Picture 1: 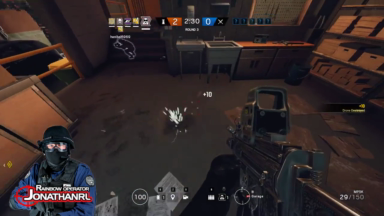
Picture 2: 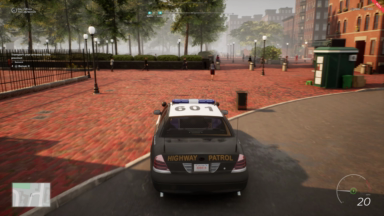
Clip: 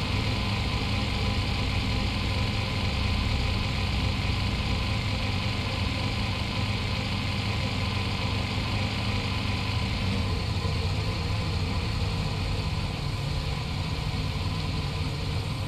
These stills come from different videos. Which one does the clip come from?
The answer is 2